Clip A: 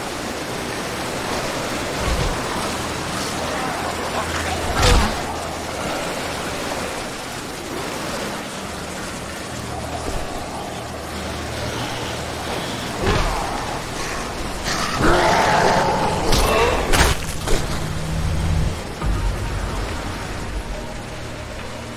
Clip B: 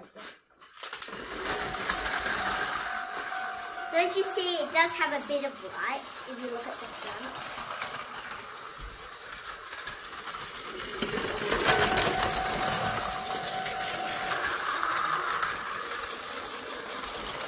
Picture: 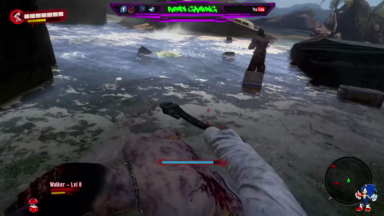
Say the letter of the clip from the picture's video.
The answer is A